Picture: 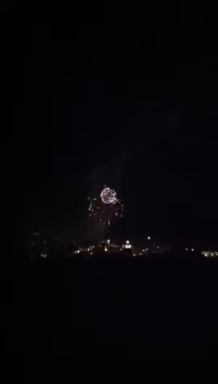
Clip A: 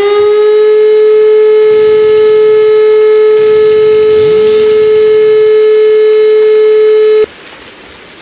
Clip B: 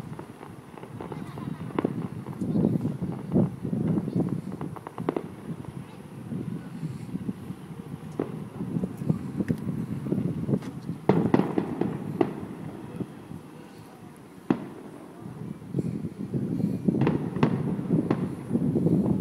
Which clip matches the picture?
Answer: B